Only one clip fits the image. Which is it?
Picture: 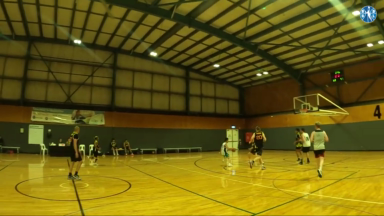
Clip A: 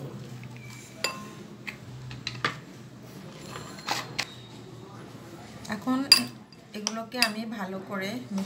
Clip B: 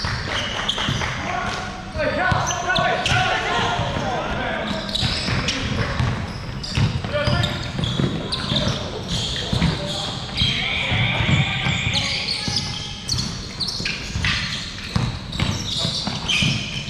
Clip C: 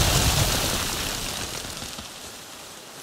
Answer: B